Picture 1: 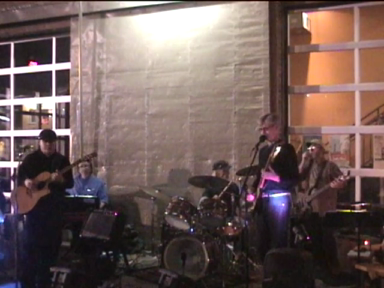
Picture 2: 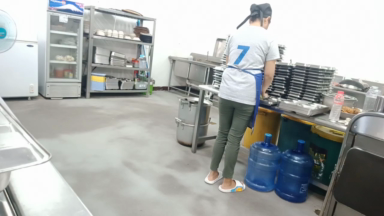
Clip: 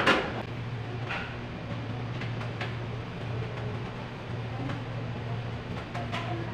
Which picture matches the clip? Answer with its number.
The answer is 2